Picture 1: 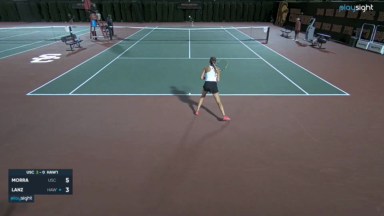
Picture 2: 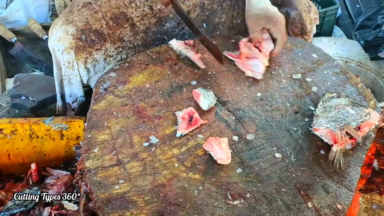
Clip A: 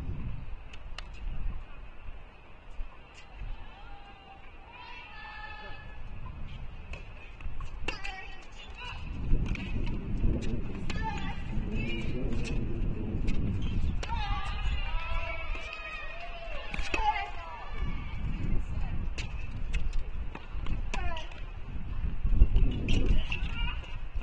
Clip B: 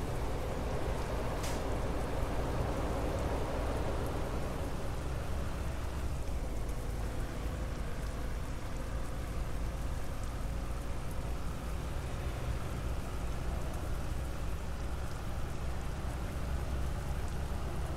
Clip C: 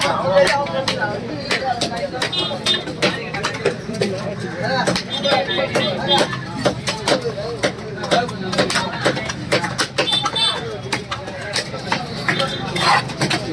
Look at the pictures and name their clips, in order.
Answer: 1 A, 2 C